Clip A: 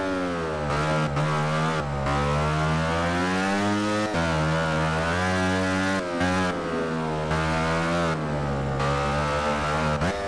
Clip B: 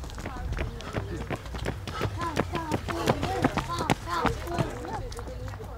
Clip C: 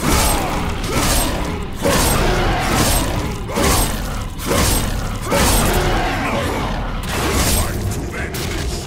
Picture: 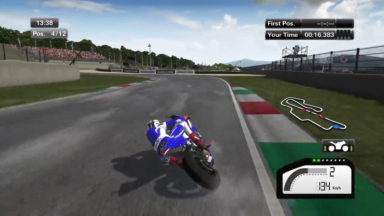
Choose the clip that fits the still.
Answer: A